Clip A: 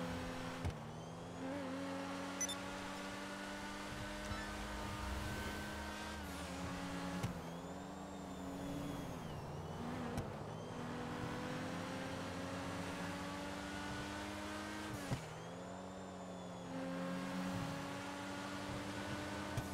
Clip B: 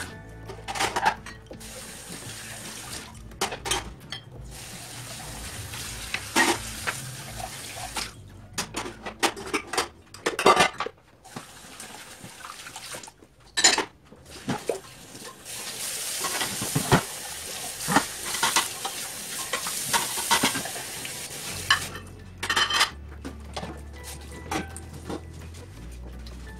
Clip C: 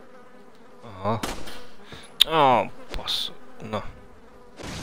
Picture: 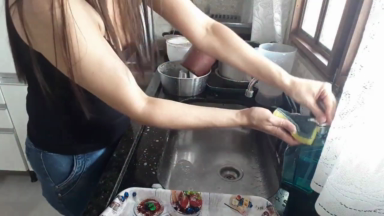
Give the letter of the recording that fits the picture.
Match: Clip B